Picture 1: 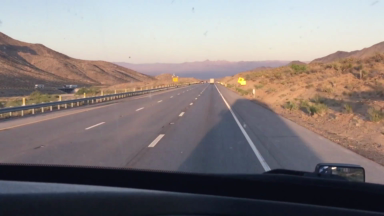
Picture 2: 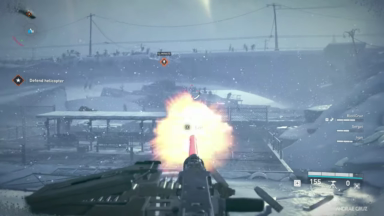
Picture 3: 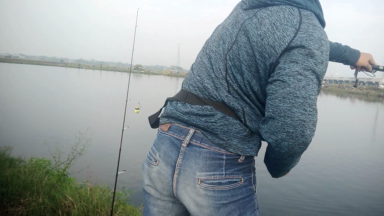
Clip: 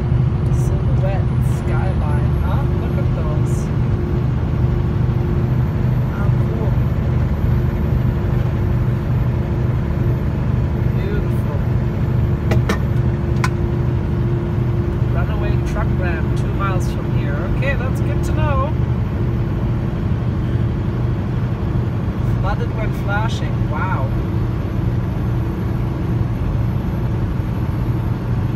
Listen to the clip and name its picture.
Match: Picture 1